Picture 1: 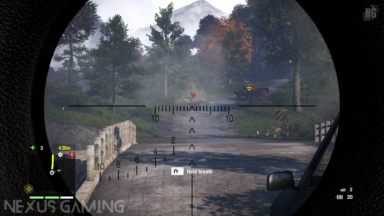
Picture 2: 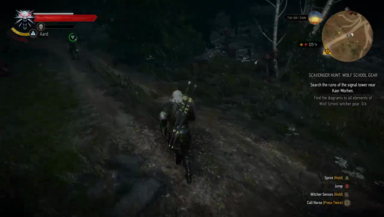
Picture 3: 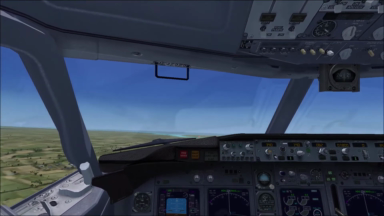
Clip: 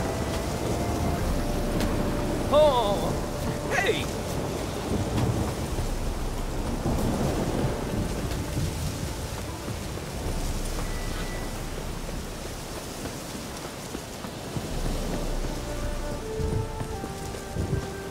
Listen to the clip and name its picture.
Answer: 2